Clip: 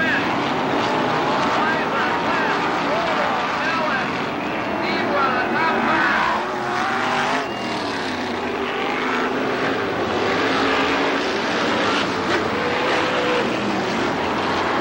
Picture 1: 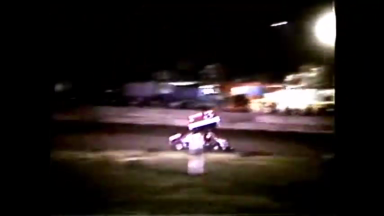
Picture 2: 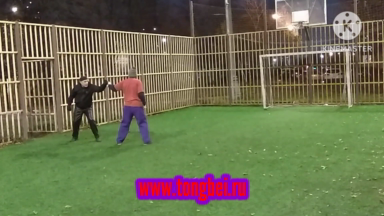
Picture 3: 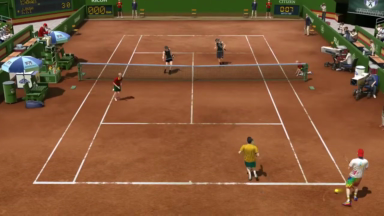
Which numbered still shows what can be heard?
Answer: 1